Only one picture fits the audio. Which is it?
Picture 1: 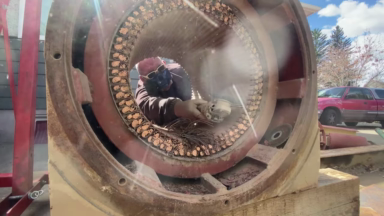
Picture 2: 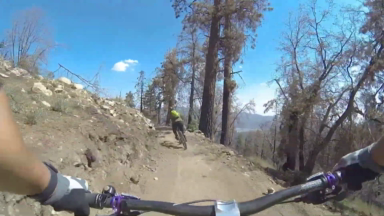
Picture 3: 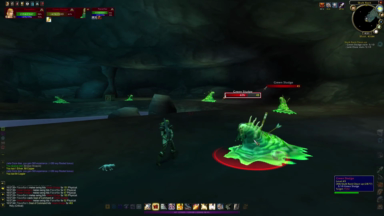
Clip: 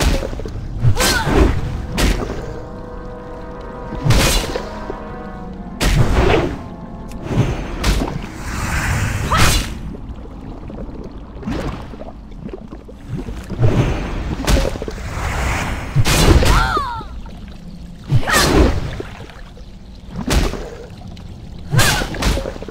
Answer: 3